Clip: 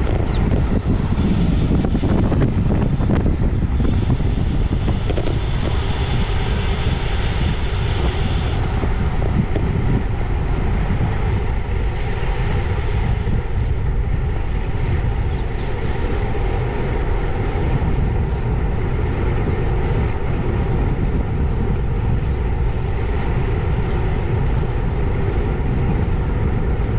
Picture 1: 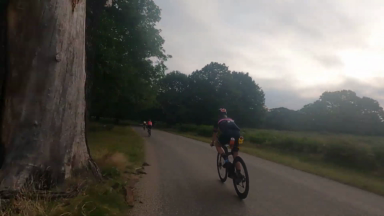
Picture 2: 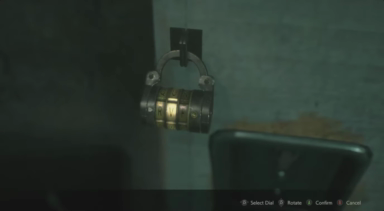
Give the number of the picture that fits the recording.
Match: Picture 1